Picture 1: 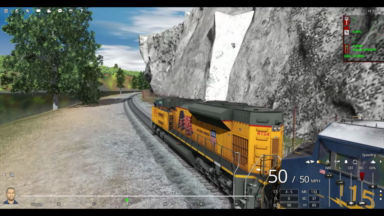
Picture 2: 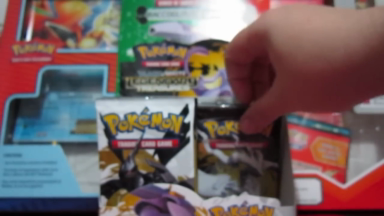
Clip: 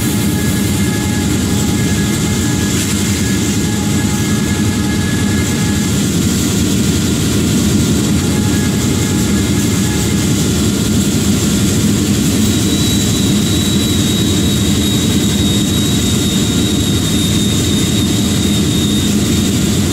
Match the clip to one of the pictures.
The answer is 1